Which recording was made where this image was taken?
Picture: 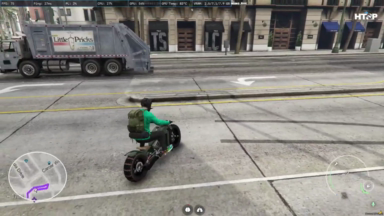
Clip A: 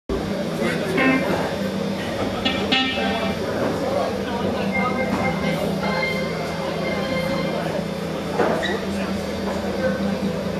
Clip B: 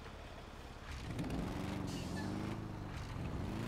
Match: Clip B